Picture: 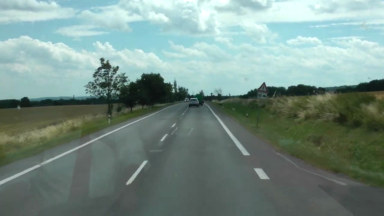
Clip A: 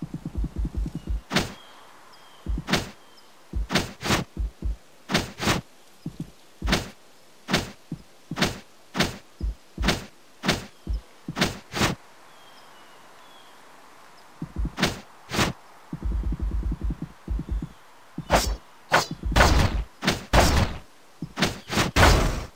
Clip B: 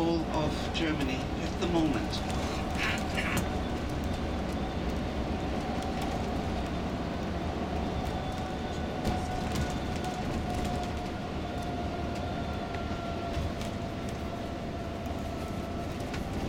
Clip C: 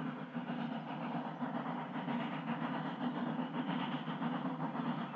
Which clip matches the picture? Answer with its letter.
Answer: B